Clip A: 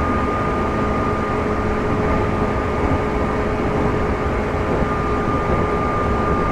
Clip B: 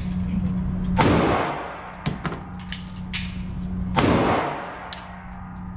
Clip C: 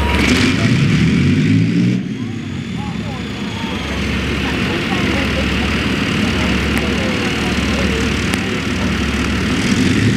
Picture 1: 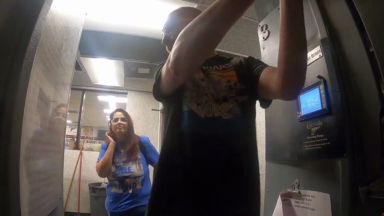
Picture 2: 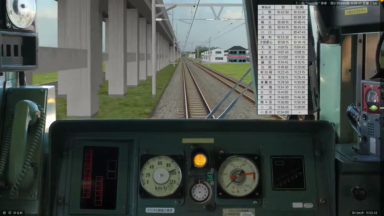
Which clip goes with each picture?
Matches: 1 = B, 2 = A